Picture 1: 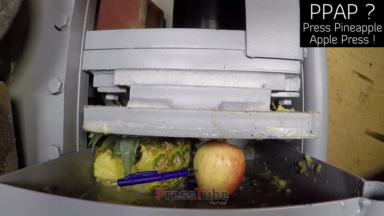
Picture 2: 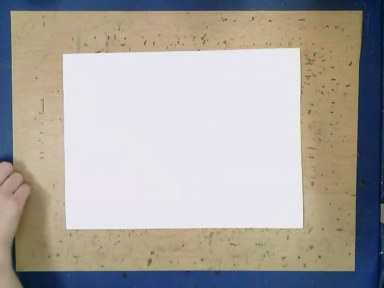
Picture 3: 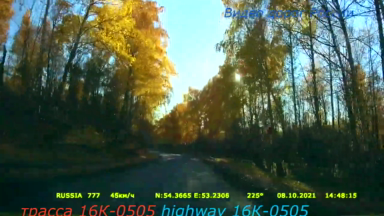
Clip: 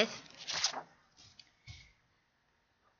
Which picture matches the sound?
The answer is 2